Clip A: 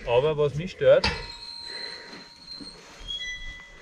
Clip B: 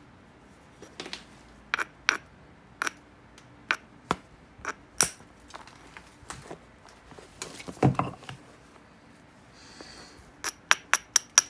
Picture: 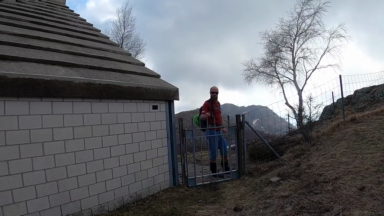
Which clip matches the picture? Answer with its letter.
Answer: A